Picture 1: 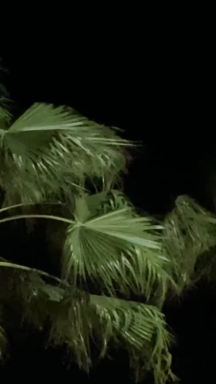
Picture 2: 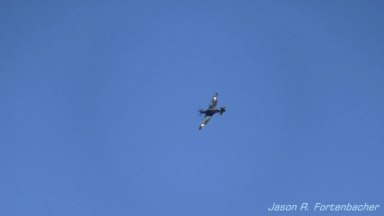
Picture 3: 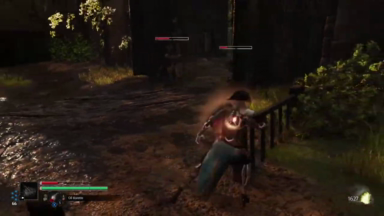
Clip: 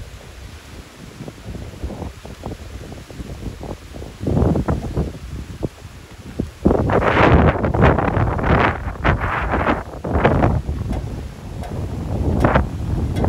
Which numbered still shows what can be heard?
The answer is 1